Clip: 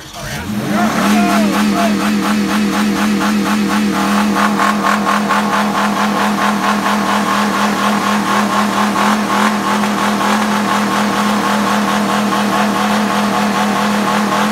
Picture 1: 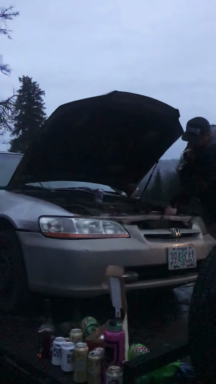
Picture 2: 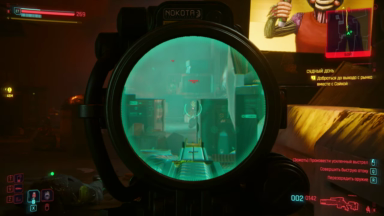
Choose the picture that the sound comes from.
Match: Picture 1